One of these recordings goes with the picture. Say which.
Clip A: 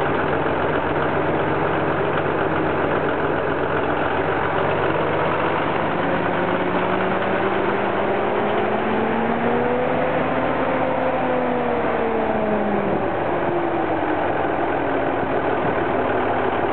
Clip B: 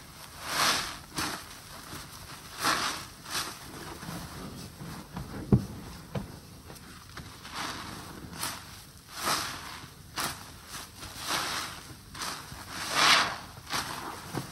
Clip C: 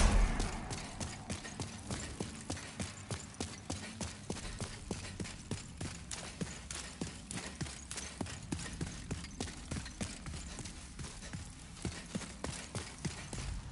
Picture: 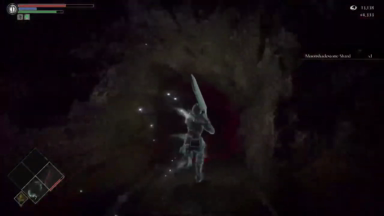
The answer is C